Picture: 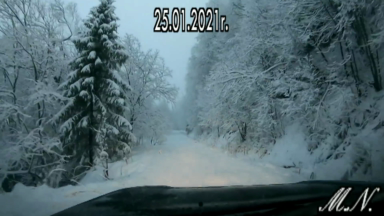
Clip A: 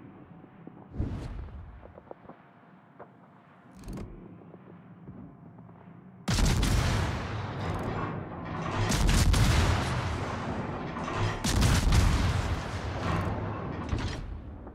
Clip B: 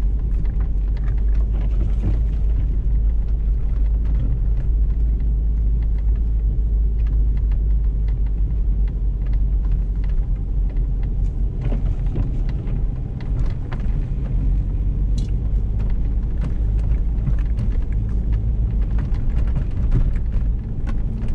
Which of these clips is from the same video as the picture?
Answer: B